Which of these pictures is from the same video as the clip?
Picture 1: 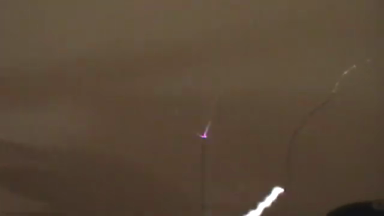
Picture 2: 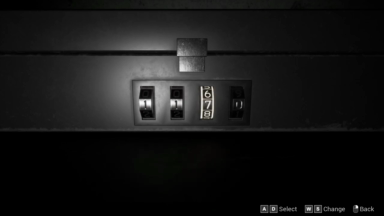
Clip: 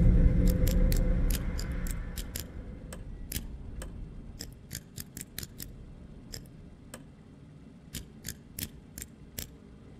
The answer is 2